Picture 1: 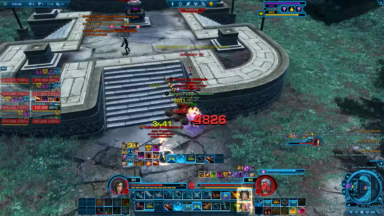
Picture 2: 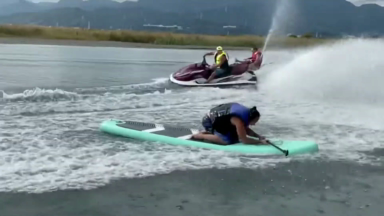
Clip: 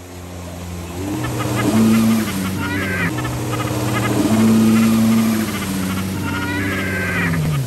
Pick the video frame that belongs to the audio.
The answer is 2